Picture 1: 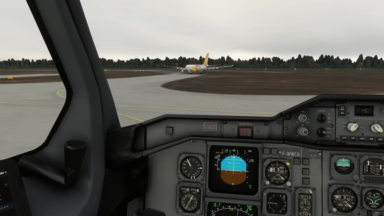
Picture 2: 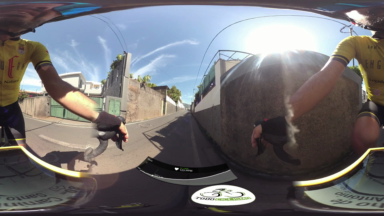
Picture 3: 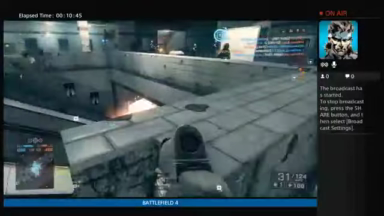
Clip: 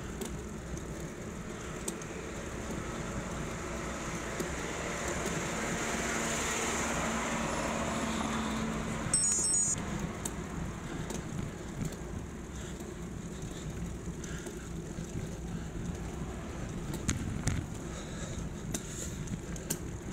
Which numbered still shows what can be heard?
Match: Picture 2